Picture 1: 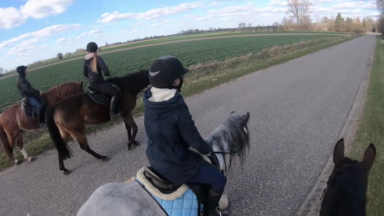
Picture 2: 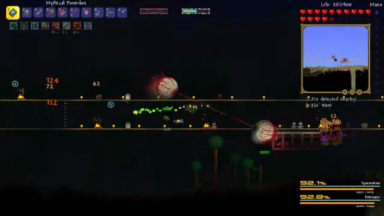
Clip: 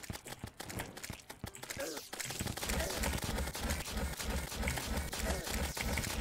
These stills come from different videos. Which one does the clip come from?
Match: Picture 2